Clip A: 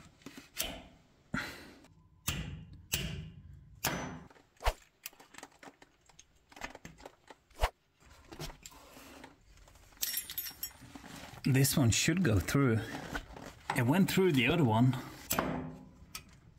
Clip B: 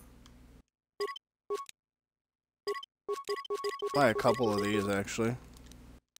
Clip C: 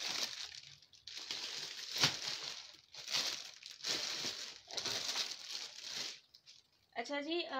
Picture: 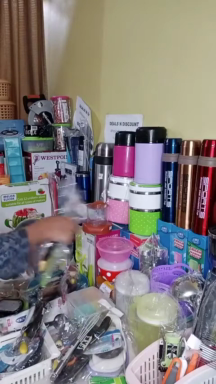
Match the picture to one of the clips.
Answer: C